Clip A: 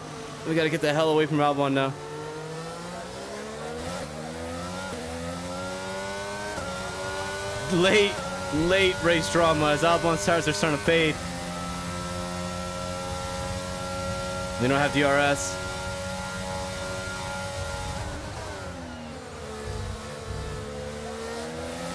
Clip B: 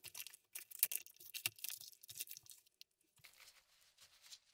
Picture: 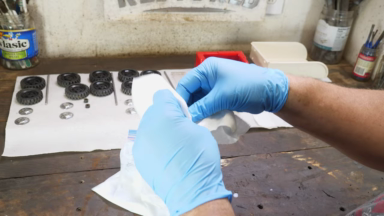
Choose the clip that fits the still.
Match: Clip B